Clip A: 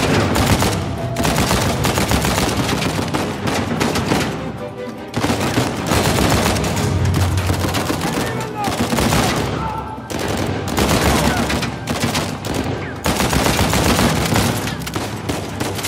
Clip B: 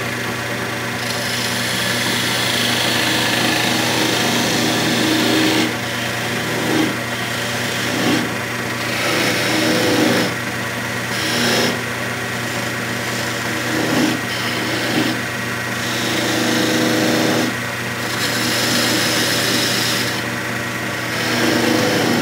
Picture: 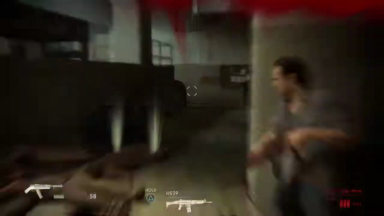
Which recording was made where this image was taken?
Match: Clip A